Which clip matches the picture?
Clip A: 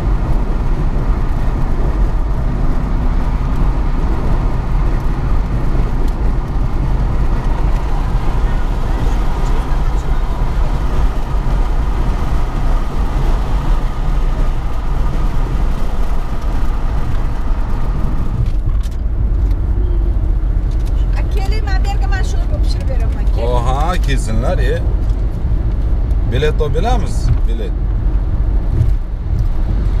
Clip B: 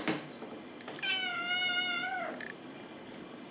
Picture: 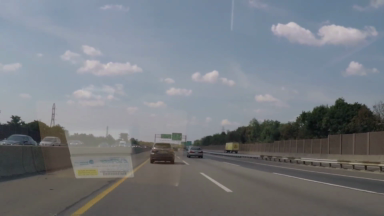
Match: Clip A